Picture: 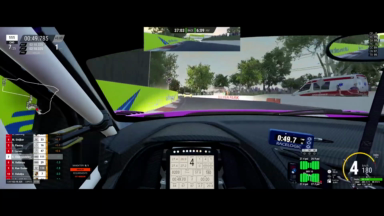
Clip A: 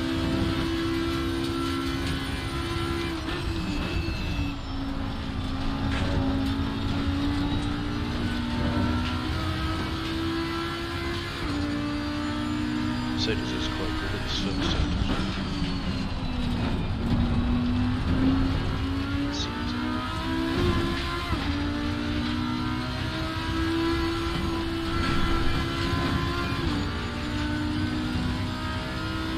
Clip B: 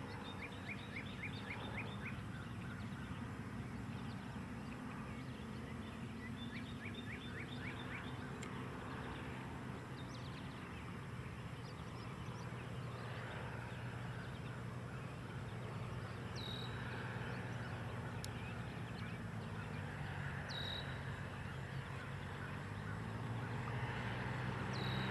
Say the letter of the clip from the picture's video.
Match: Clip A